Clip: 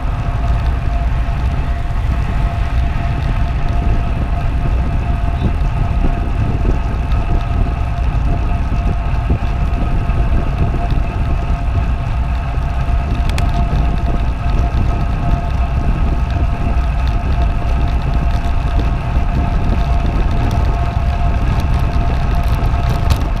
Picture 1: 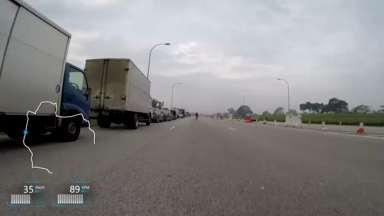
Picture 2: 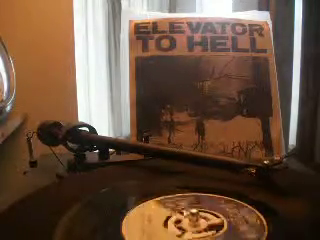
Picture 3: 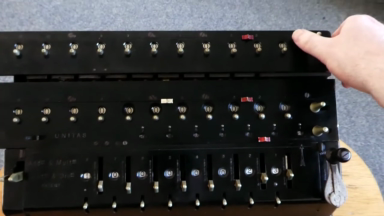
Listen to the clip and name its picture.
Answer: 1